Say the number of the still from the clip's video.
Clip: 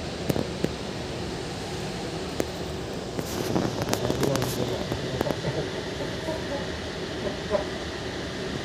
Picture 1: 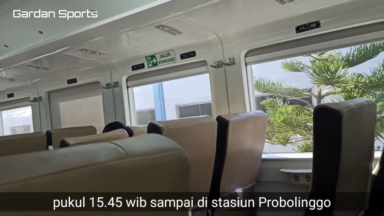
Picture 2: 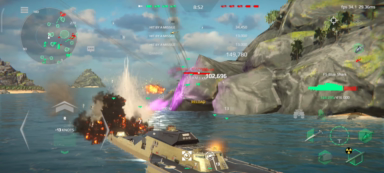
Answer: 1